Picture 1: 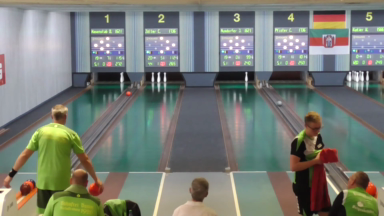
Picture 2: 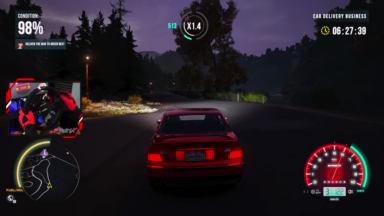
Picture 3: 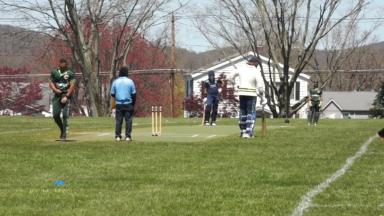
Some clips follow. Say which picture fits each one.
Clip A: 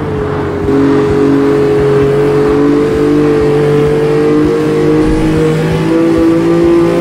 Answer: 2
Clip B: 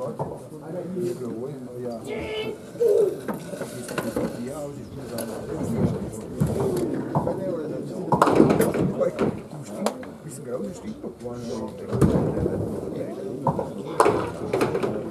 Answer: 1